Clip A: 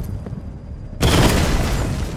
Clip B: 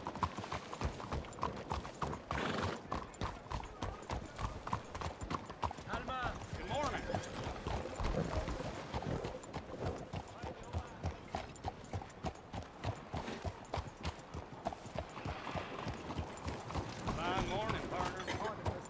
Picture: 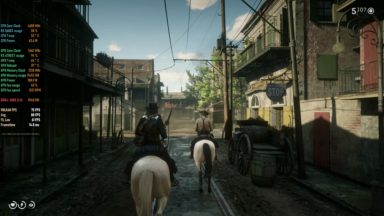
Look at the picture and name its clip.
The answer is B